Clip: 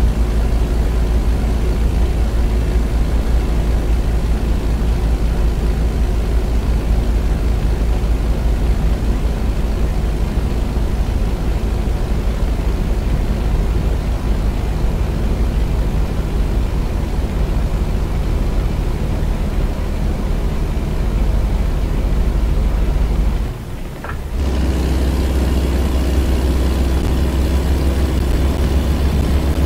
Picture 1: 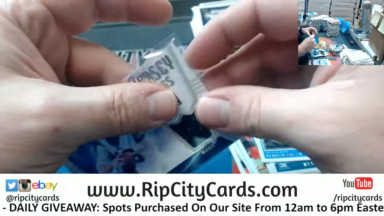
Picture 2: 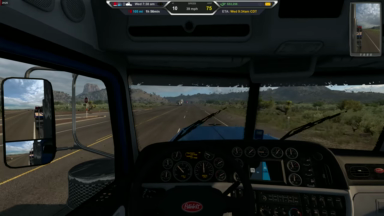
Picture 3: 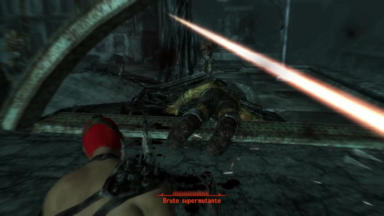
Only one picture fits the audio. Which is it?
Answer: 2